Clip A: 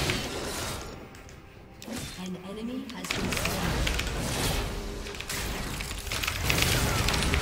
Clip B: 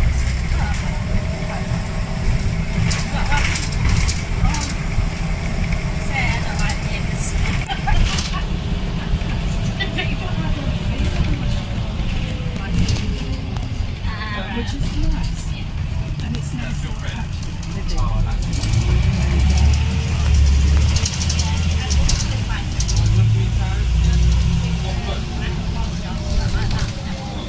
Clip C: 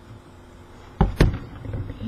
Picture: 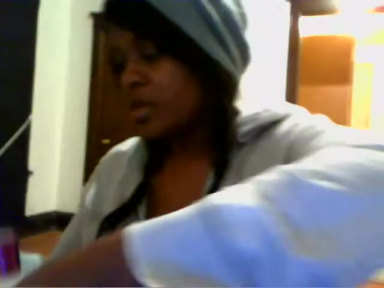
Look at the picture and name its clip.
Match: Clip C